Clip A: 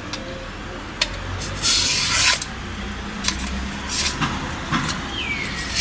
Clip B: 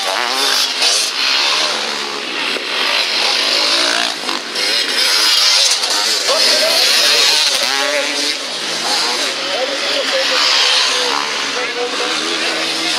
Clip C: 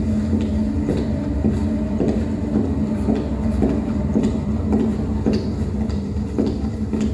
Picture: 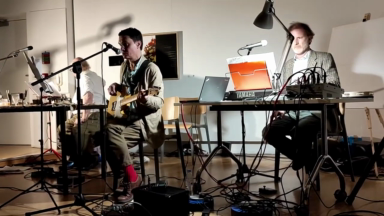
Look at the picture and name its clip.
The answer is C